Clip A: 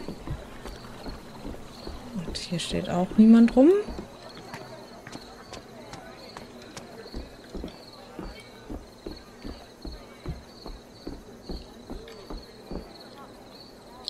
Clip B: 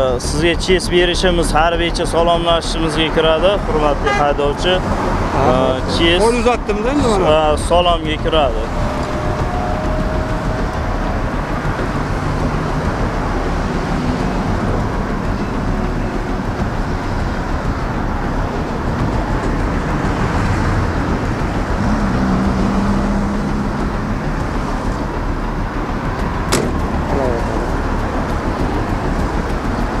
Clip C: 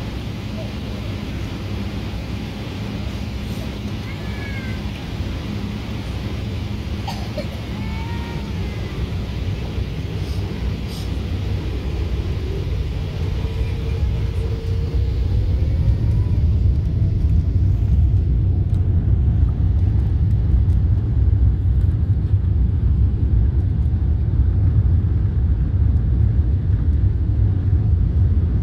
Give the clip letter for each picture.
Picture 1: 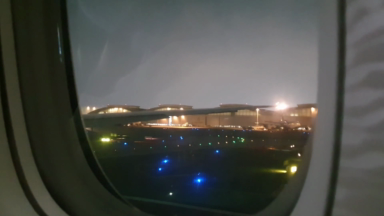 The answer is C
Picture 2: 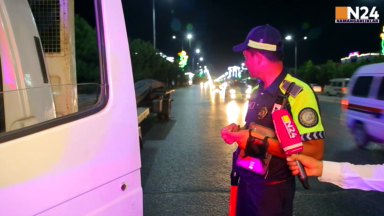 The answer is B